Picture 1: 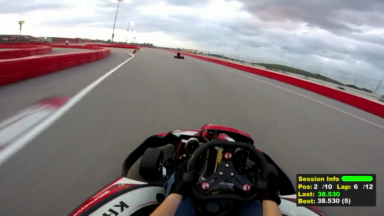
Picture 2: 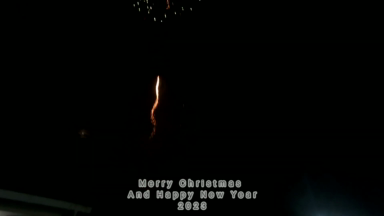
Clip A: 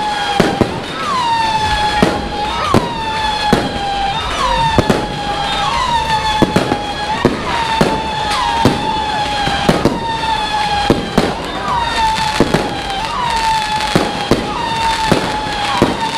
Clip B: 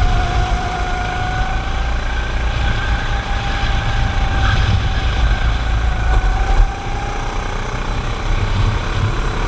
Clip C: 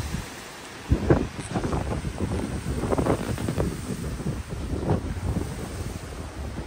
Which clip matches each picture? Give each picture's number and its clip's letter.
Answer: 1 B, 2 A